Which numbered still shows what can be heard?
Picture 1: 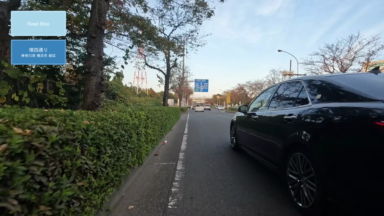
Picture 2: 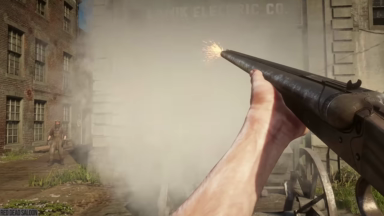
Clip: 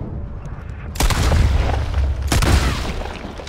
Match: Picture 2